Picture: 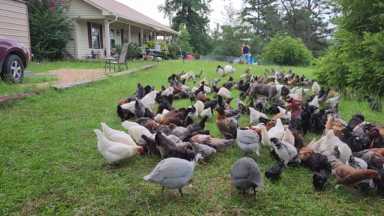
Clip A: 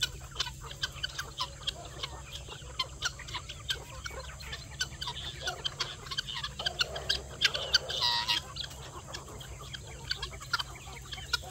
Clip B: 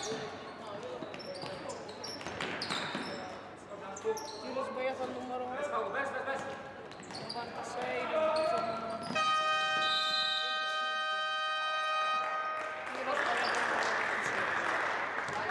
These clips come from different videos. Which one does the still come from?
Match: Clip A